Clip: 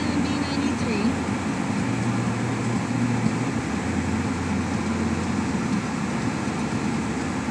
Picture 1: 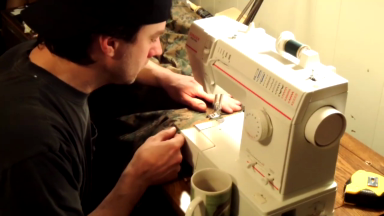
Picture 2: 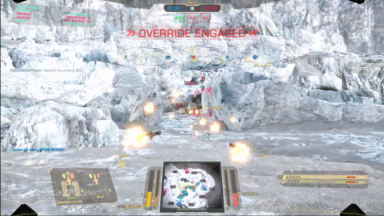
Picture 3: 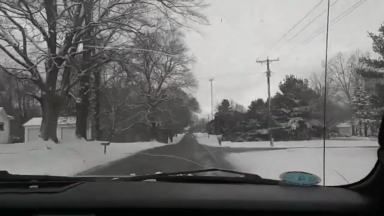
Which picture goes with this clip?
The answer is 3